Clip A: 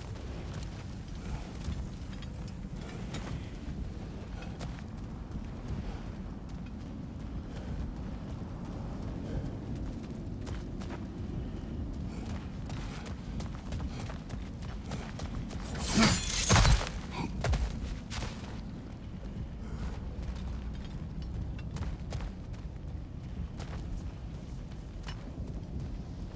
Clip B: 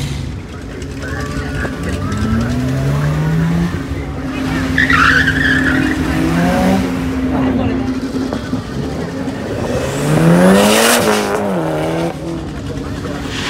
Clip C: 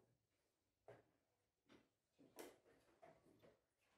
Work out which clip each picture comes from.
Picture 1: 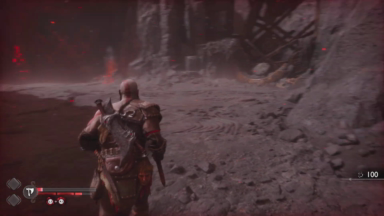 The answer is A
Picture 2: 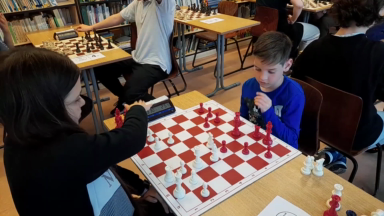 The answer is C